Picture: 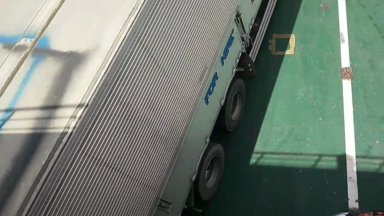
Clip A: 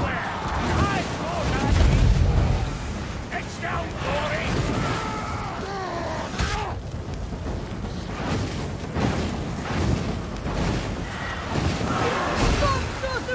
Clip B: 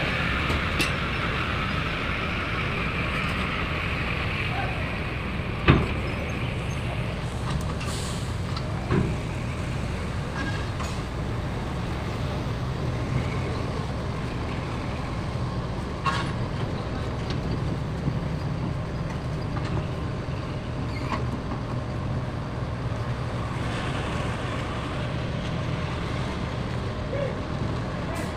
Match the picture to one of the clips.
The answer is B